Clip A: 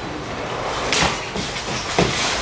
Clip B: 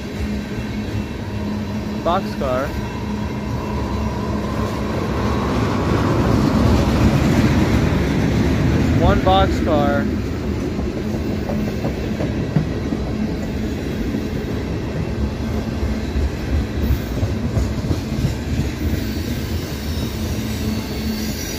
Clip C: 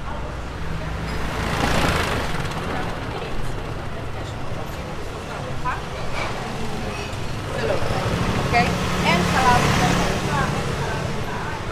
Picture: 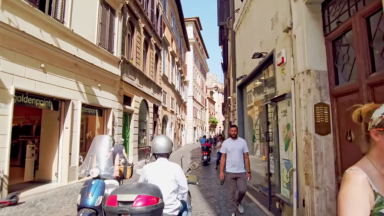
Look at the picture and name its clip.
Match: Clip C